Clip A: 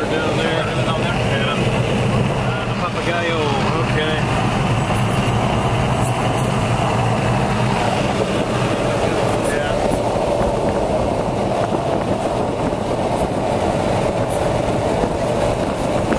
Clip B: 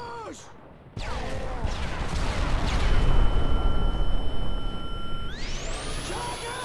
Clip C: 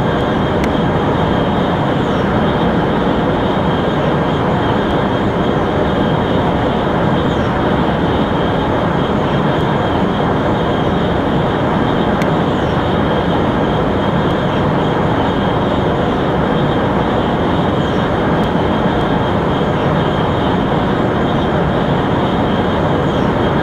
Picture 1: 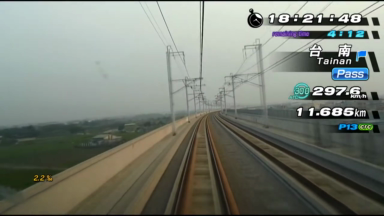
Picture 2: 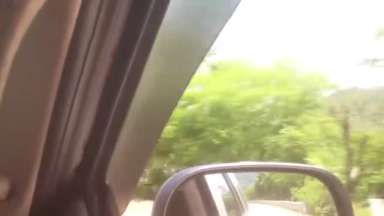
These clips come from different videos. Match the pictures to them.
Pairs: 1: C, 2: A